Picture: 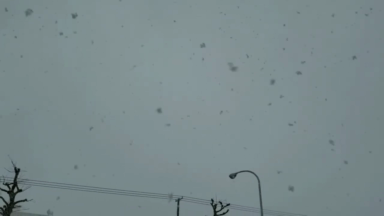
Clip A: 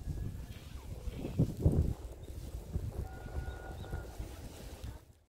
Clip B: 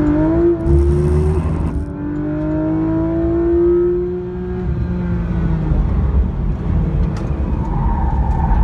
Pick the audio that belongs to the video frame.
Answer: A